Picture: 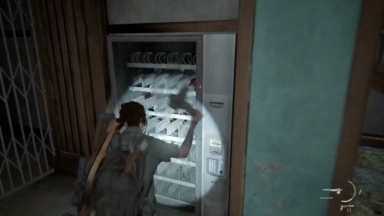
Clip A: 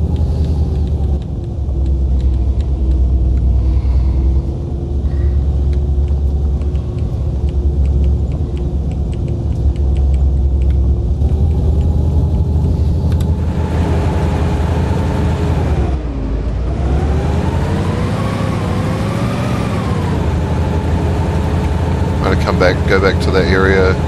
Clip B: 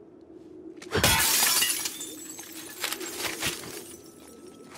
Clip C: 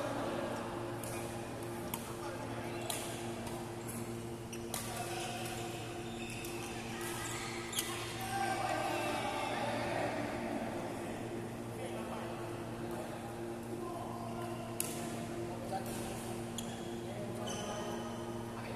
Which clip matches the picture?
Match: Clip B